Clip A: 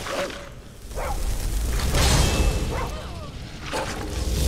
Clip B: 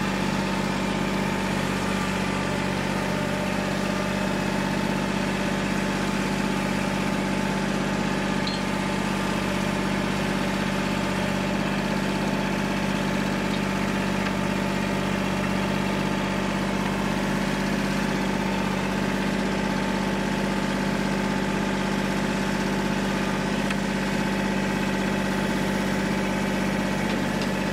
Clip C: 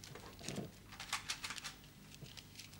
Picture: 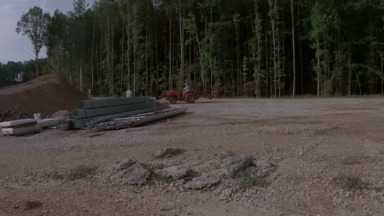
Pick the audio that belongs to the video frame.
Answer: B